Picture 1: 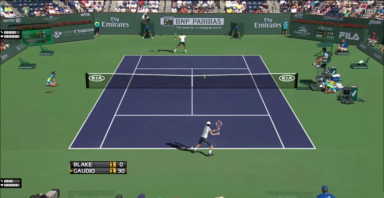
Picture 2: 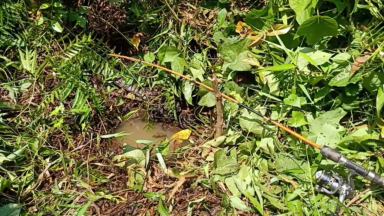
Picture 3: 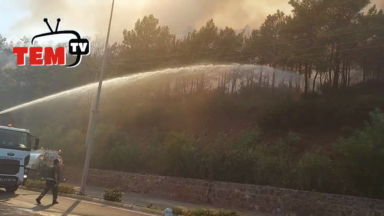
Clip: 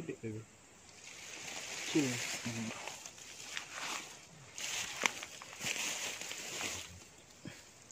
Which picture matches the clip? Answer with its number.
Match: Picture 2